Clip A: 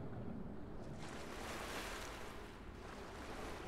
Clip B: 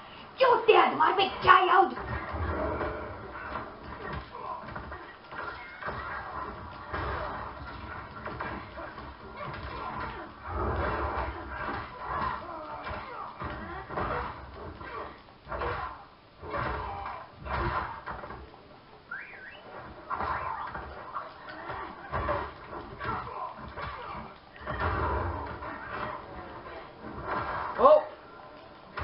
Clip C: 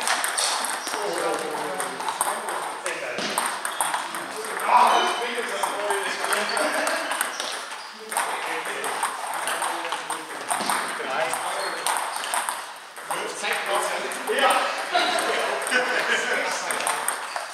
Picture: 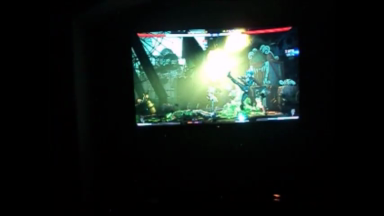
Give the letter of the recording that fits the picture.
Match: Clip B